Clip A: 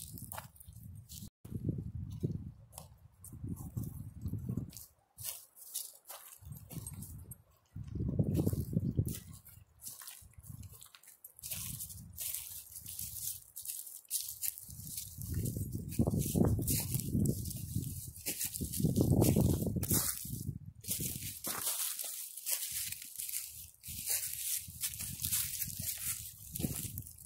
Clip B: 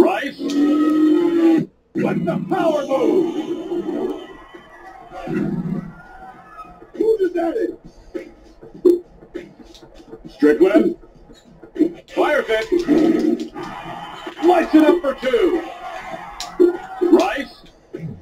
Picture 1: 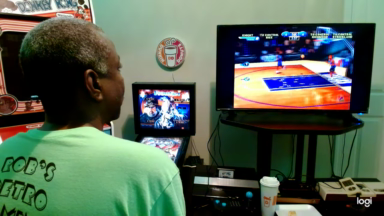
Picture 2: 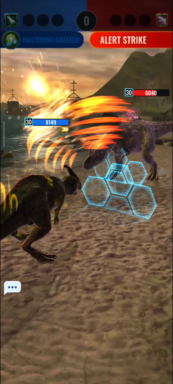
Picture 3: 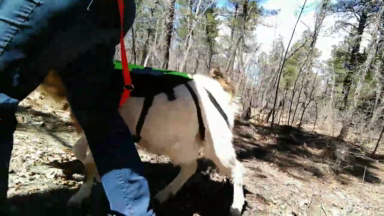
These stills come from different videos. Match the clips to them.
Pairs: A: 3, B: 1